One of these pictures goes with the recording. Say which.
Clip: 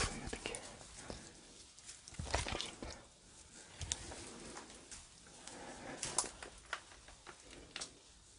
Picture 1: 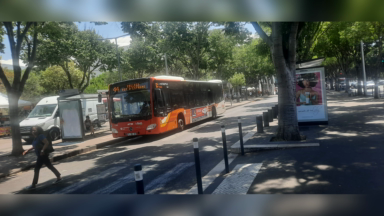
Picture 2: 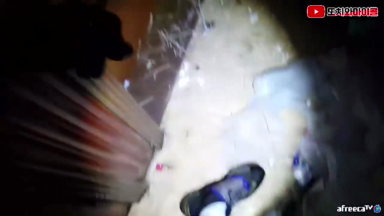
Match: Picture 2